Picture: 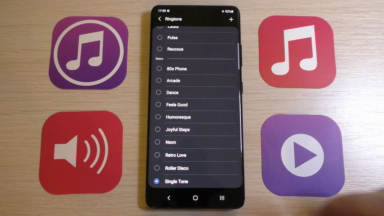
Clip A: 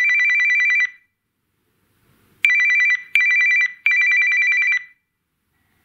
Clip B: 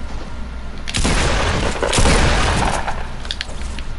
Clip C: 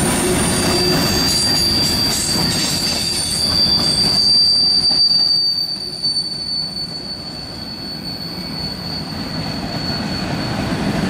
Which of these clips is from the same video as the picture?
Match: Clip A